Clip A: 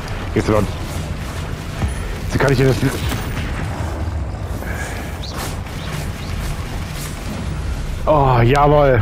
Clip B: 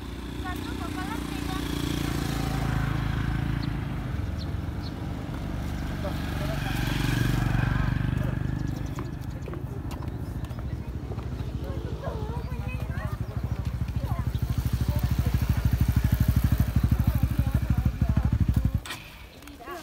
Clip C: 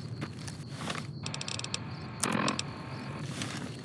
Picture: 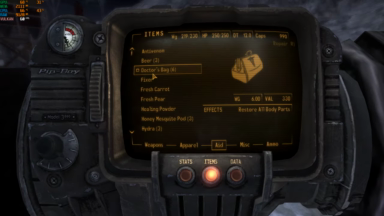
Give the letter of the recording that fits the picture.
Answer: C